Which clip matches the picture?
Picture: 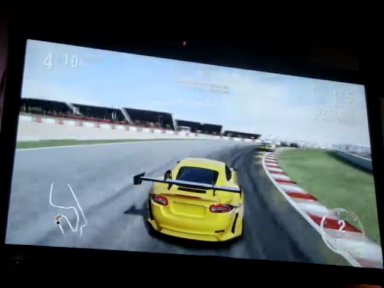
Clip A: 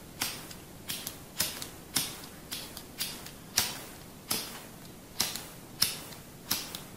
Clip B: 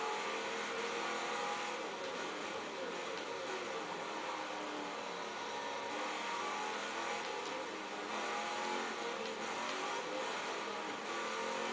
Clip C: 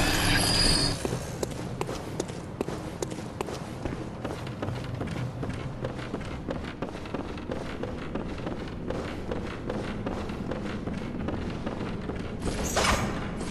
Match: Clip B